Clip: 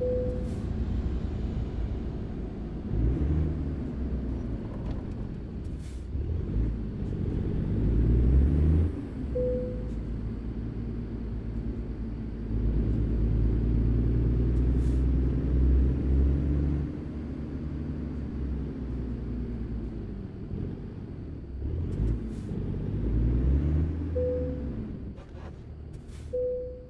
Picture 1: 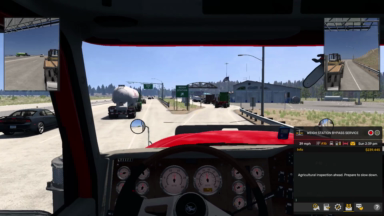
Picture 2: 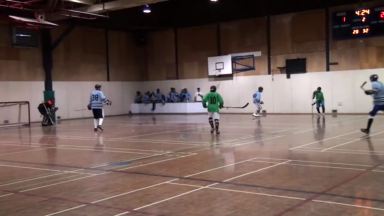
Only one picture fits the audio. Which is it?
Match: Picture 1